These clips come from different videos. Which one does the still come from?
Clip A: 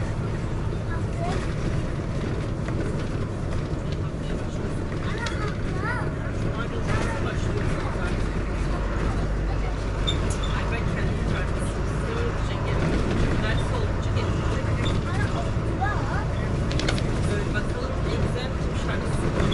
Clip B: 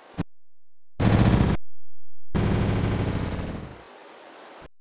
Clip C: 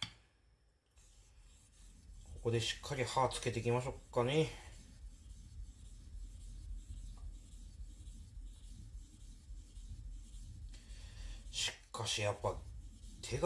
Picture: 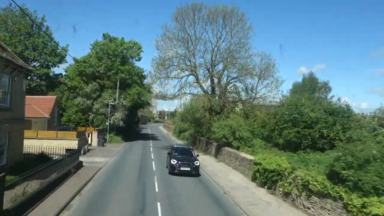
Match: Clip A